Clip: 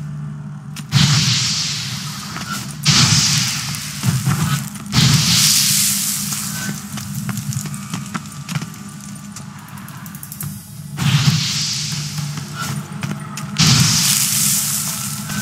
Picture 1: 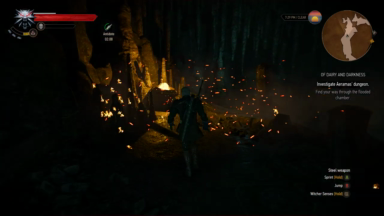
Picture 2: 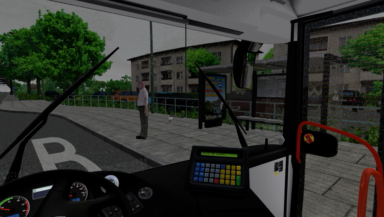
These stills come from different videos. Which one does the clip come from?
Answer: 1